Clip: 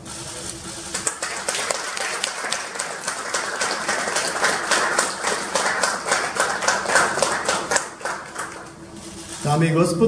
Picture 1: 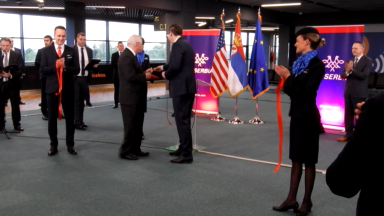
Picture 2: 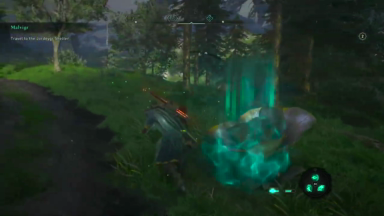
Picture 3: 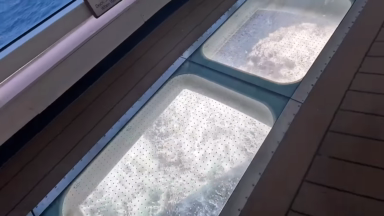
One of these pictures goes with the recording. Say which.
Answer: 1